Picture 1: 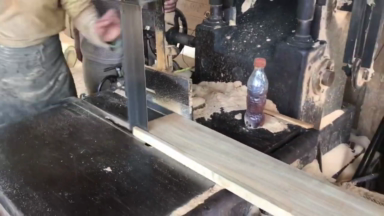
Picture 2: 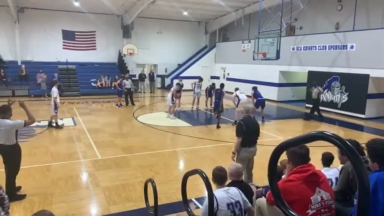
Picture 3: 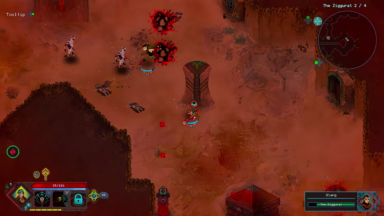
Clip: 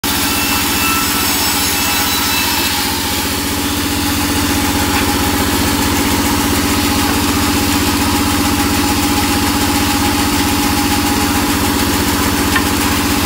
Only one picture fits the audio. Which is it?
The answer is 1